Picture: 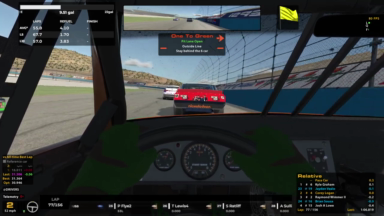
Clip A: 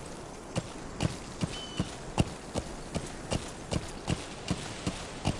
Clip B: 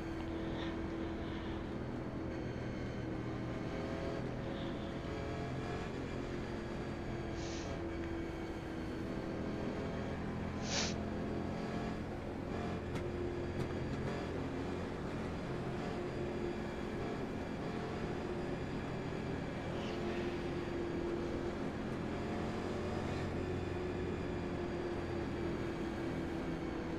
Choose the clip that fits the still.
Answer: B